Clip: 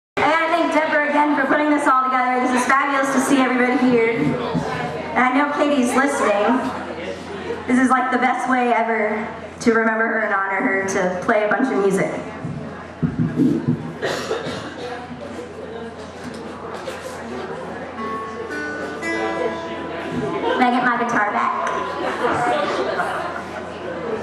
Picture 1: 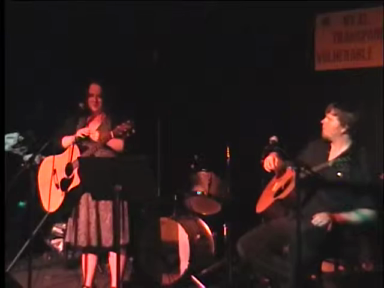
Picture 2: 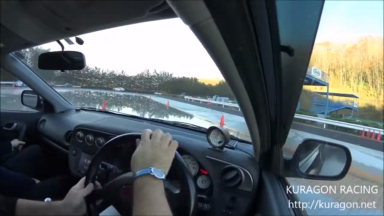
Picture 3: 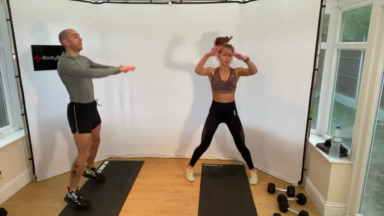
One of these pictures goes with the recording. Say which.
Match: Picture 1